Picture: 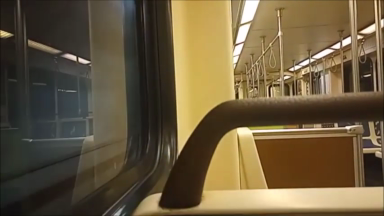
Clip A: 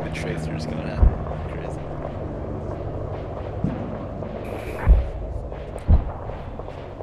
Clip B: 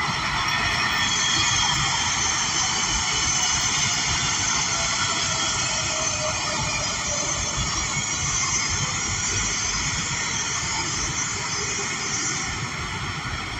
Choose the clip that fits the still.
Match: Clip B